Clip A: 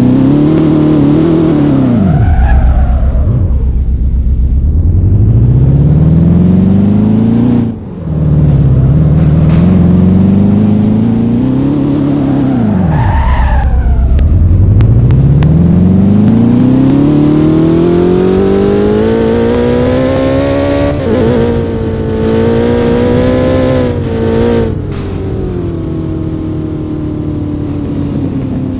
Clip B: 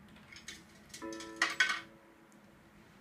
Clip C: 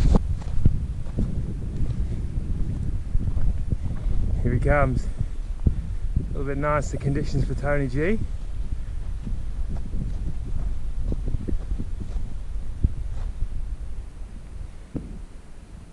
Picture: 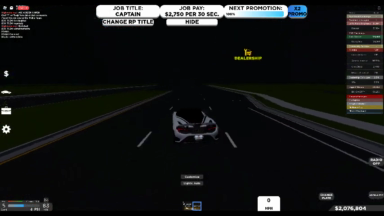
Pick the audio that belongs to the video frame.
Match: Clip A